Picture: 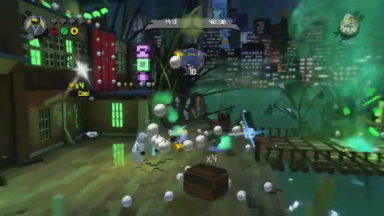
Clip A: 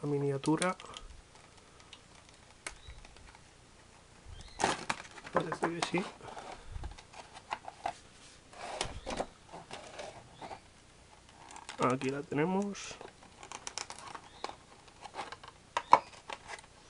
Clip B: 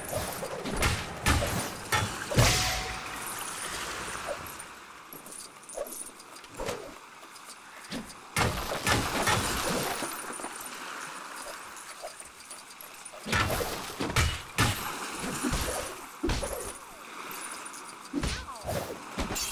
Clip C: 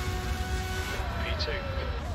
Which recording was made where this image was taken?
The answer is B